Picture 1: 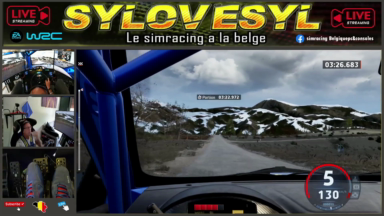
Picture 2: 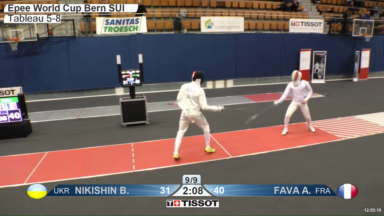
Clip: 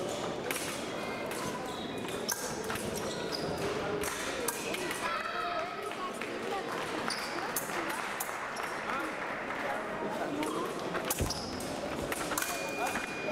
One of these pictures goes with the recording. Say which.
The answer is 2